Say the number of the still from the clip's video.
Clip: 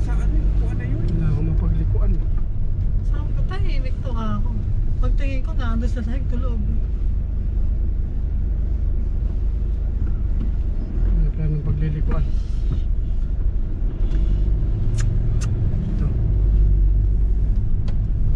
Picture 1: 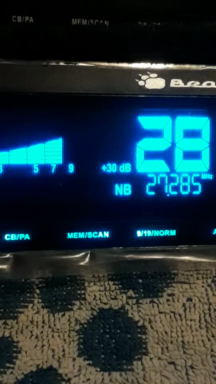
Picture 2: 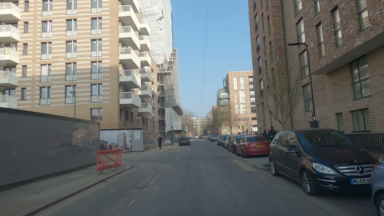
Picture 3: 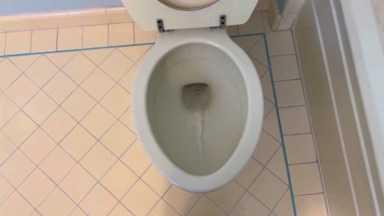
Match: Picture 2